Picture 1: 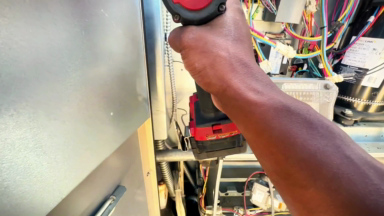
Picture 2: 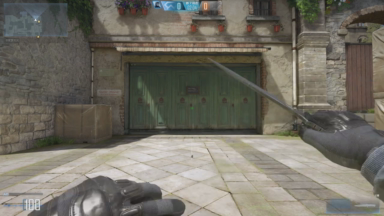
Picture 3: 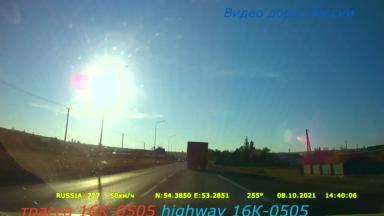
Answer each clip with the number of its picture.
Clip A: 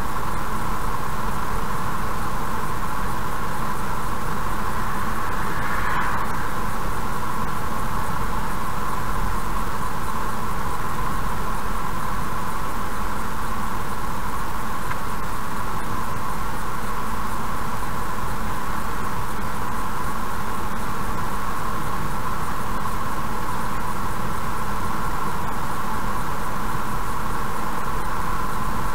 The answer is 3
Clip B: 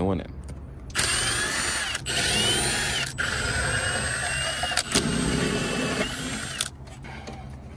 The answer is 1